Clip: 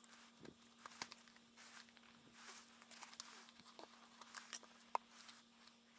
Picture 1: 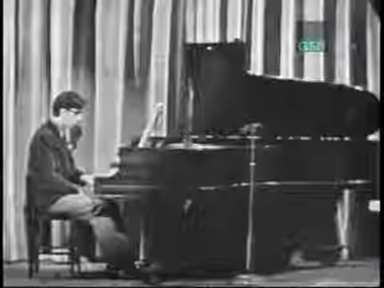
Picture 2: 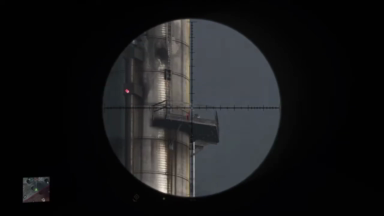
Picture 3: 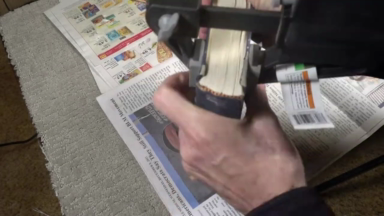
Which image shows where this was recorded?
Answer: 3